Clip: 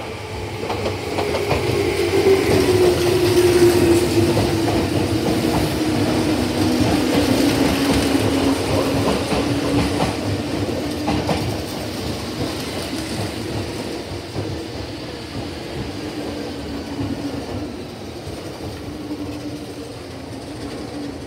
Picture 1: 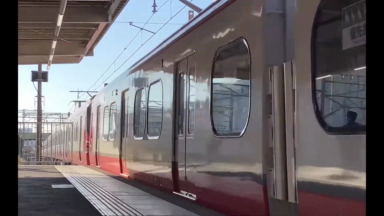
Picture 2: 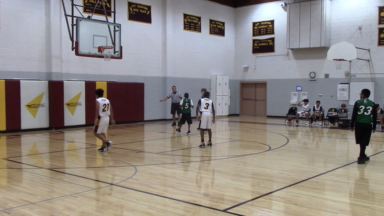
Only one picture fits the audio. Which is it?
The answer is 1